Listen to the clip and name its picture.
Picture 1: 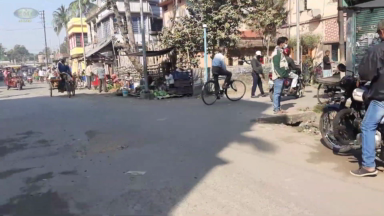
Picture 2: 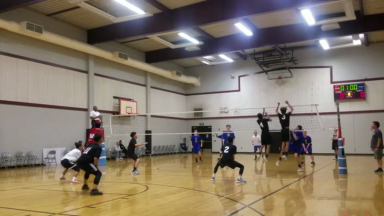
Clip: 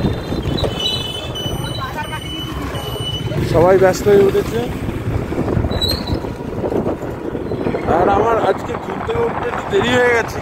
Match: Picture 1